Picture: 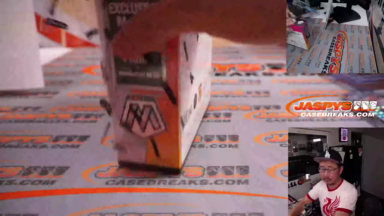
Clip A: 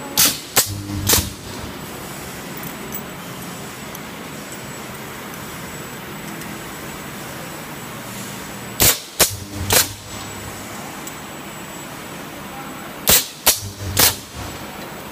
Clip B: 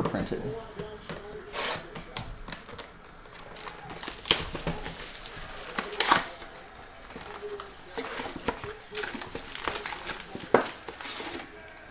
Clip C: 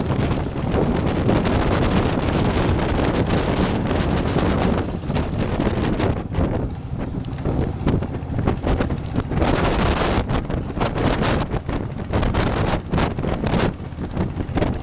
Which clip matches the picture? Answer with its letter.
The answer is B